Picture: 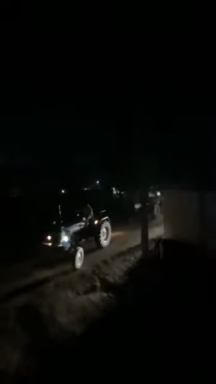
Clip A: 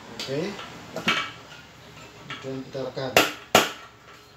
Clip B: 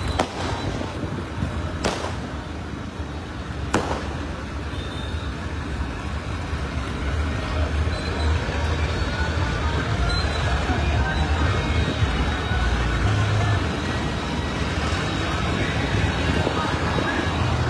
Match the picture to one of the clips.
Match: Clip B